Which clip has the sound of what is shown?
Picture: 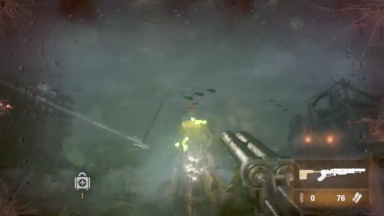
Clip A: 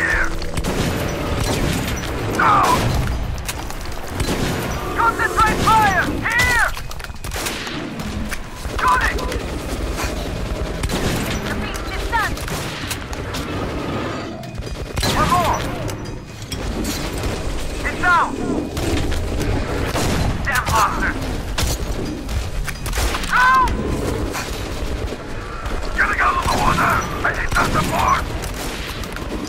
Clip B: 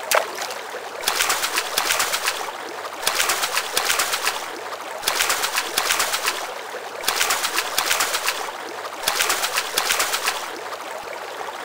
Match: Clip A